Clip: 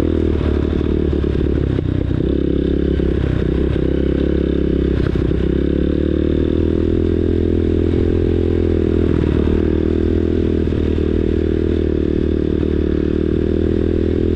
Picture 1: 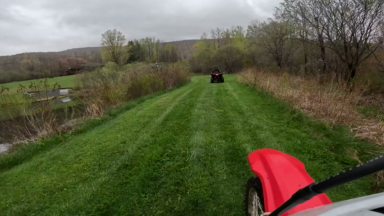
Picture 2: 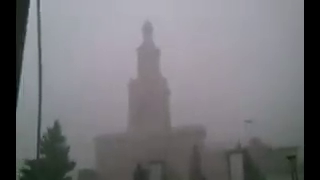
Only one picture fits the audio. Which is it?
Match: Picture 1